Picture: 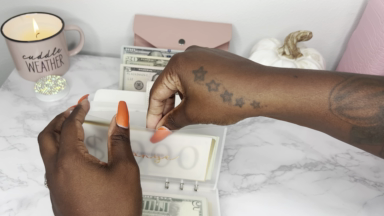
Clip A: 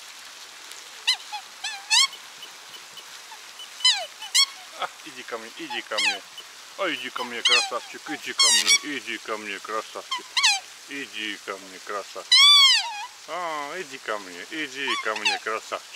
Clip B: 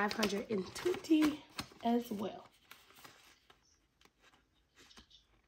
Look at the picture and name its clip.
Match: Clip B